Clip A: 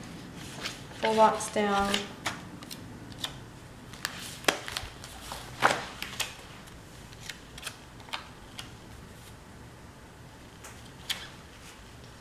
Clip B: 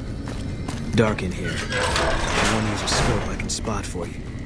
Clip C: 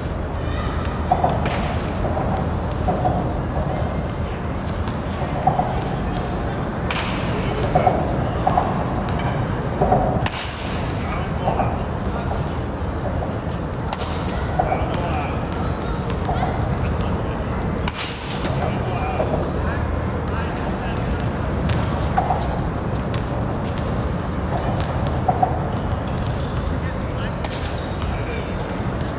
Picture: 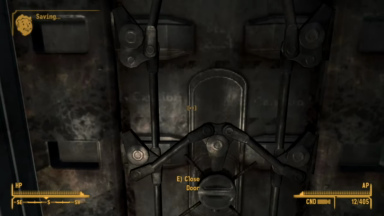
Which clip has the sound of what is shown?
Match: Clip B